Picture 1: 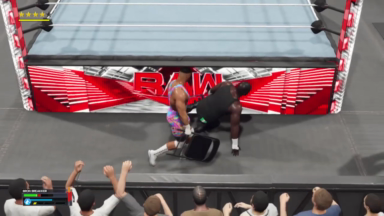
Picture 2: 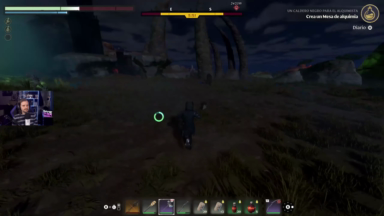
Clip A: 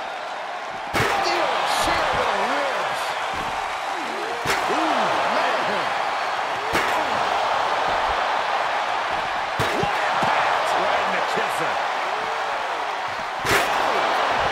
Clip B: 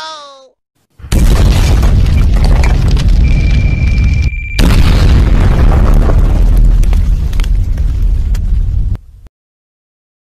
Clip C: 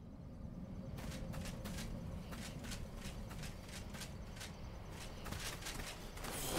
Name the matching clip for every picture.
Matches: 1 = A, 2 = C